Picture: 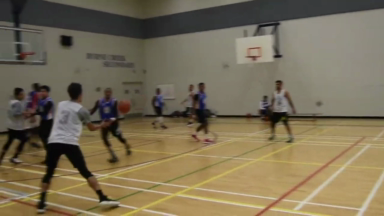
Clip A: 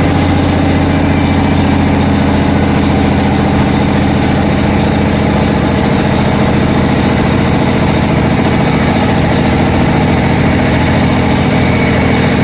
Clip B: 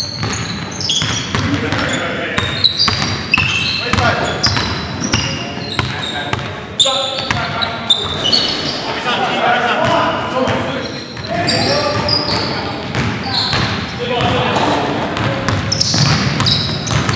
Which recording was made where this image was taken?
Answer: B